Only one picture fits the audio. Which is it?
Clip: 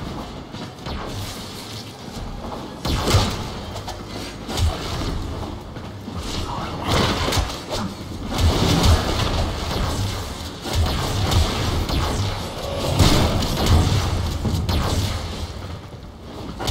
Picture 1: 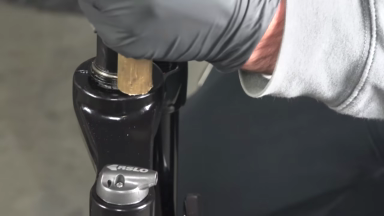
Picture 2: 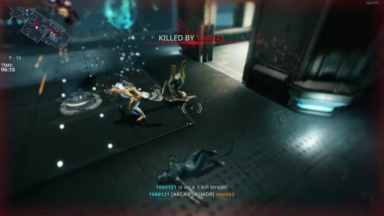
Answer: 2